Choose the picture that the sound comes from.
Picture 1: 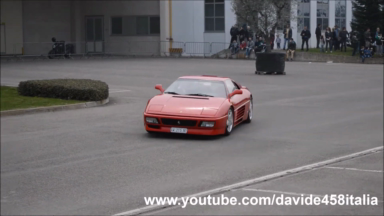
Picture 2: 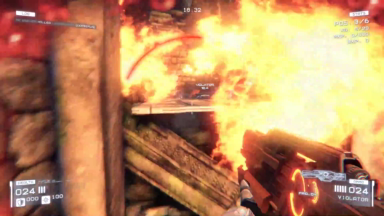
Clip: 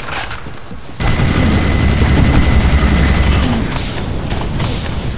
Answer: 2